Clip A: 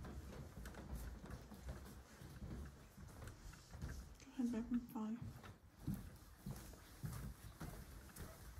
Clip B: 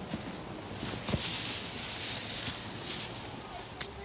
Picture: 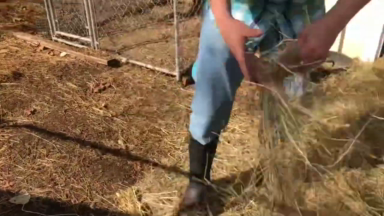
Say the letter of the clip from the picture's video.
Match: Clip B